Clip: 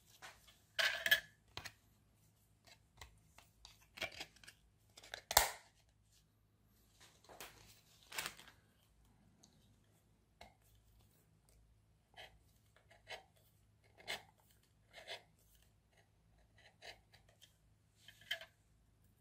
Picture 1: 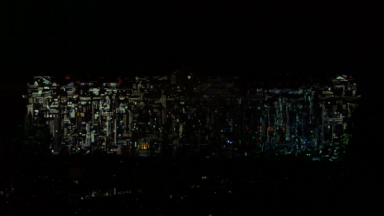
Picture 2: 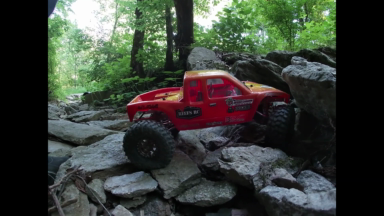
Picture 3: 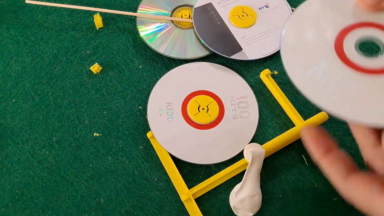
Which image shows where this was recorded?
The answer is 3